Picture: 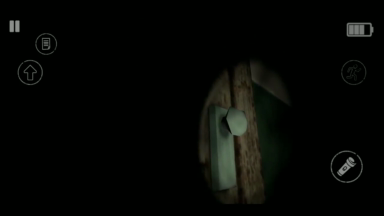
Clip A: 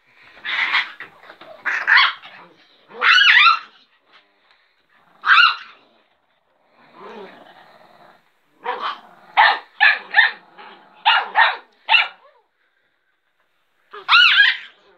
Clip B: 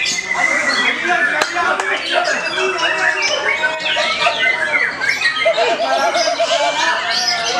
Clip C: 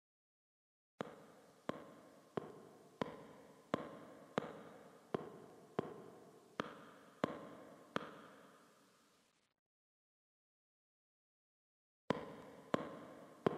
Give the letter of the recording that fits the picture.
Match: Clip C